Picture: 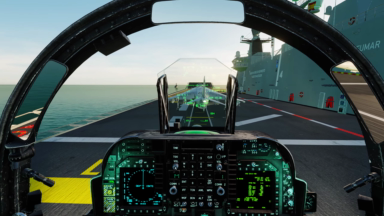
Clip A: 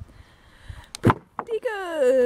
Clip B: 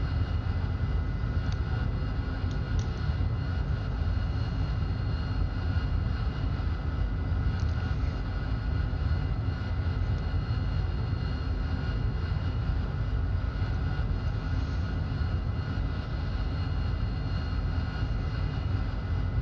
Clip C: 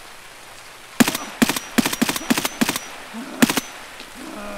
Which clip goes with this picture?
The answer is B